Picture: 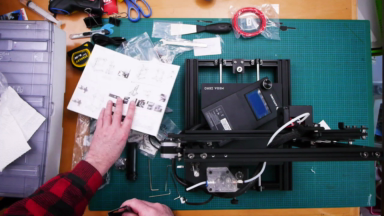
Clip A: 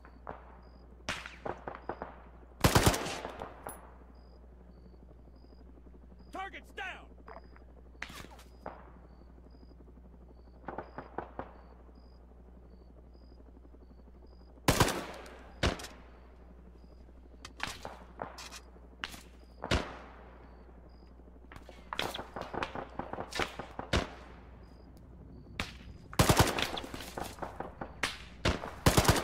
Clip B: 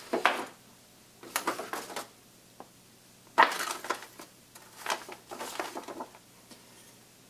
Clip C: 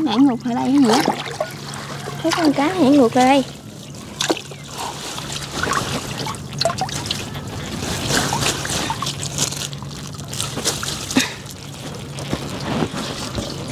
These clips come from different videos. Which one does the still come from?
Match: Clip B